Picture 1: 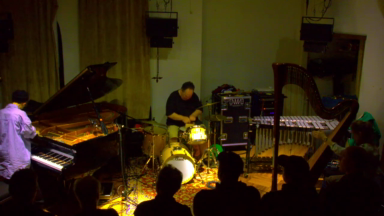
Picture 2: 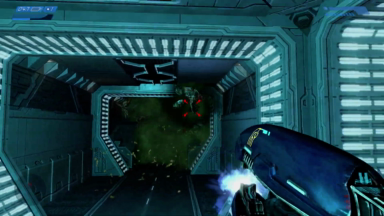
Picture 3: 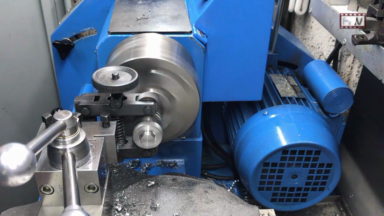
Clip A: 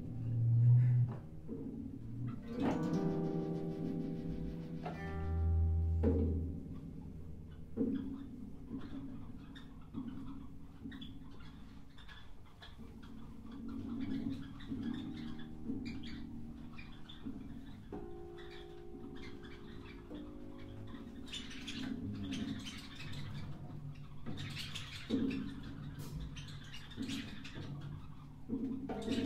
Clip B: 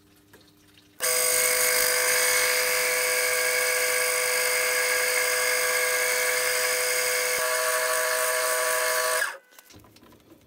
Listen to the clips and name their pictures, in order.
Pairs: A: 1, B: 3